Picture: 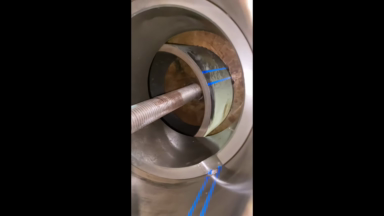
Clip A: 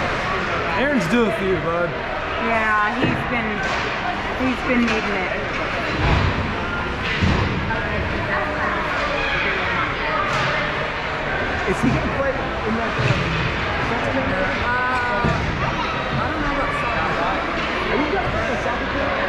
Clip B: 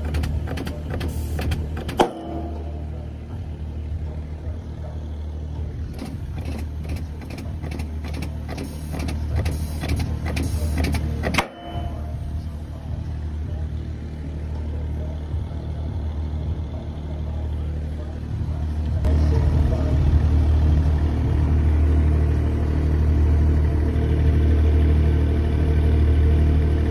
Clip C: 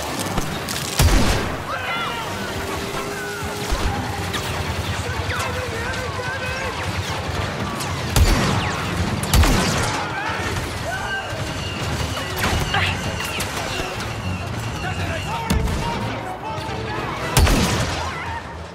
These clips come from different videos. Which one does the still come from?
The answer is B